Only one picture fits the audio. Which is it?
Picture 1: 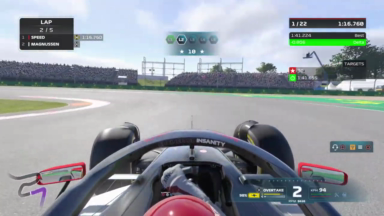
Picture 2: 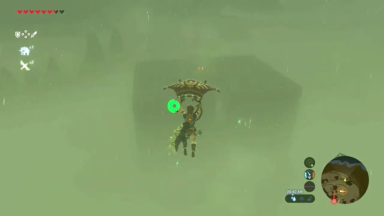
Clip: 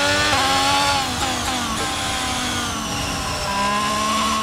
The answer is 1